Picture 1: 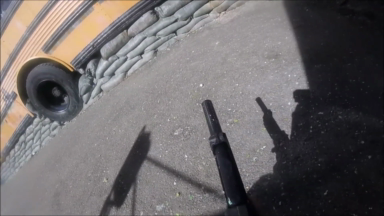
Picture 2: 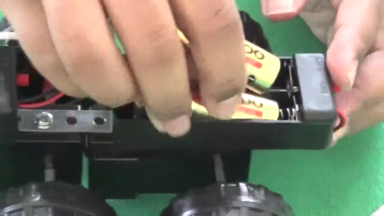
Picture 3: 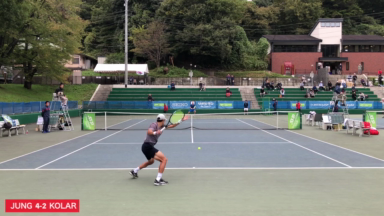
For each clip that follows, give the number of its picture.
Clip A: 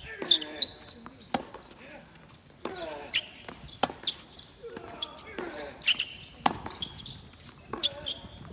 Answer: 3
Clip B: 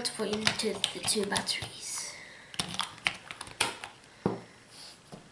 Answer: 2